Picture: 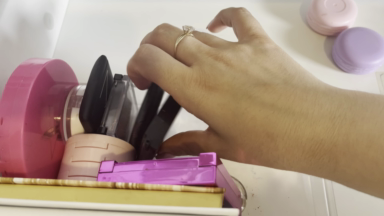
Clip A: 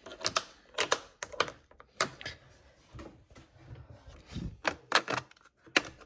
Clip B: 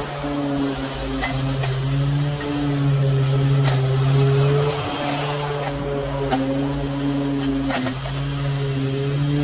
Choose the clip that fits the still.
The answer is A